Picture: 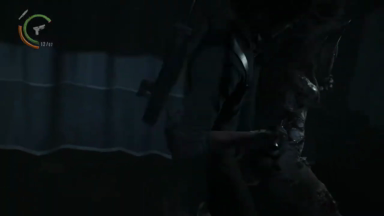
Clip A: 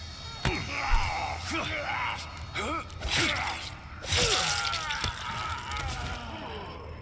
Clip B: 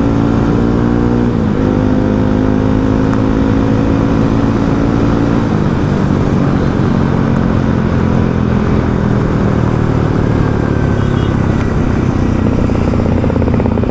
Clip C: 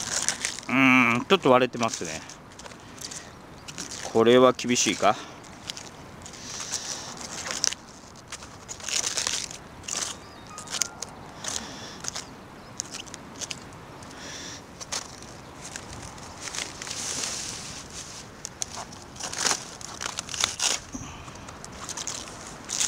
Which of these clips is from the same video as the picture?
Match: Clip A